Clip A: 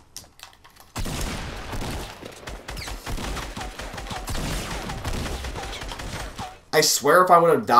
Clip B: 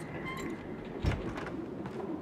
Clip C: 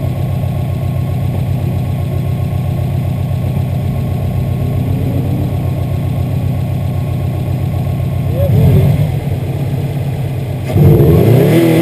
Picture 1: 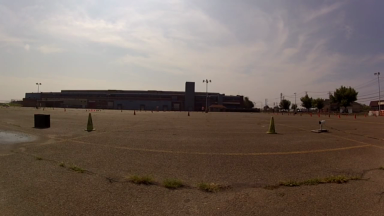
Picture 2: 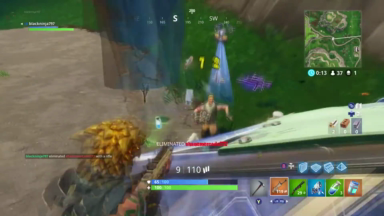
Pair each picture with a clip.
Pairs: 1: C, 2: A